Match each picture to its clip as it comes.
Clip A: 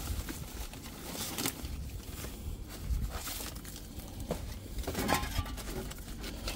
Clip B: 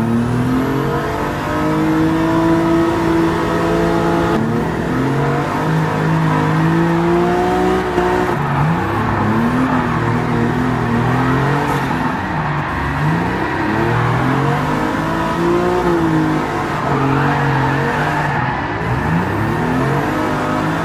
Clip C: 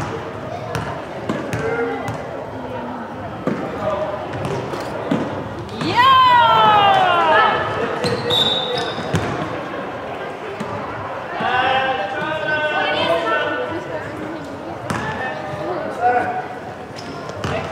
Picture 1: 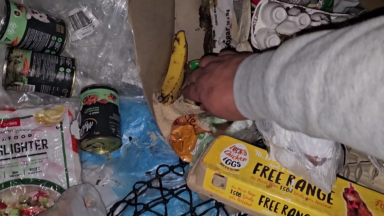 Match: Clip A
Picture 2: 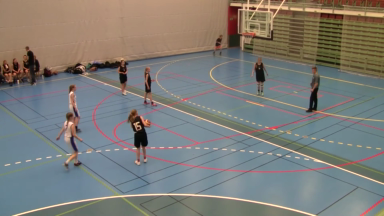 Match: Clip C